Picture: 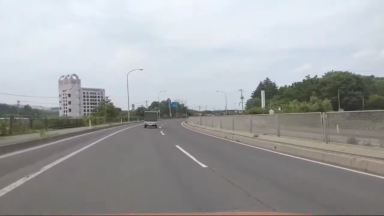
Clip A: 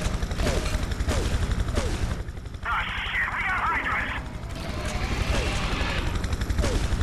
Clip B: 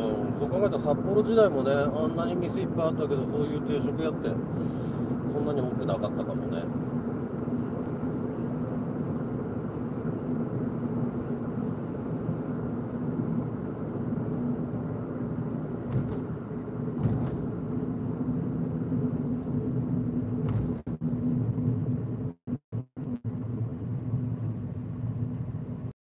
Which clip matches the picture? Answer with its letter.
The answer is B